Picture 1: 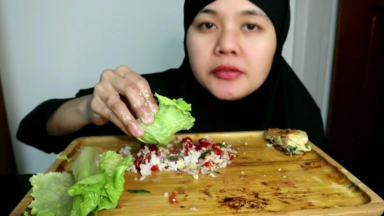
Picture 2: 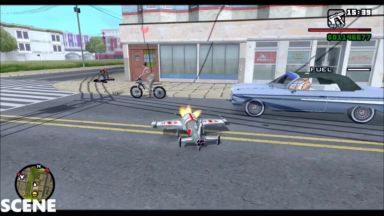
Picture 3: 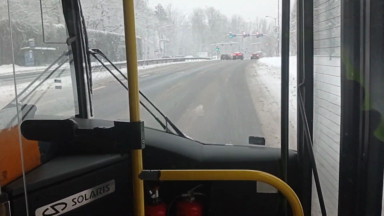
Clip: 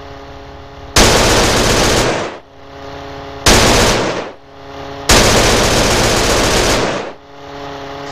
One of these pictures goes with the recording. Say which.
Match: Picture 2